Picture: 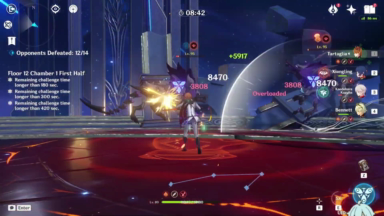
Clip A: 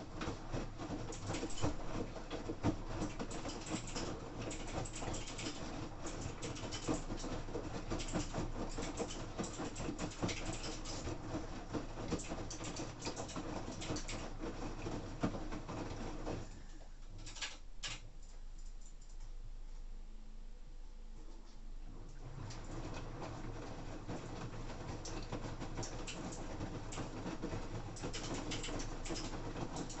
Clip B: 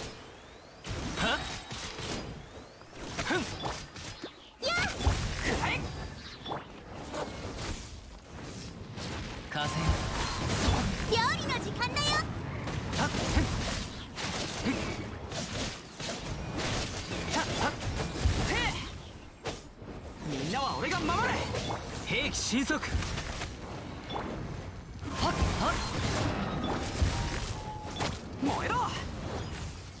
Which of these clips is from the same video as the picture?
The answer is B